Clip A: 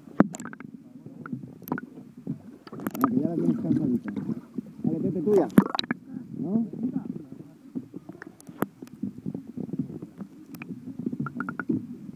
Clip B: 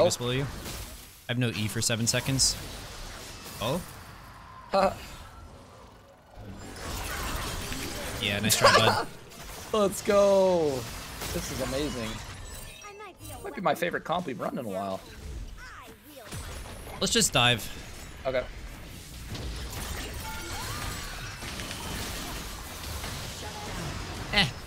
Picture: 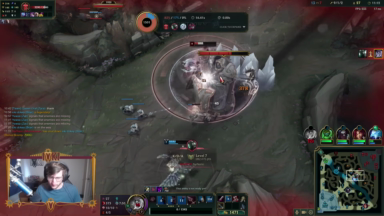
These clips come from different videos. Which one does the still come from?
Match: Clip B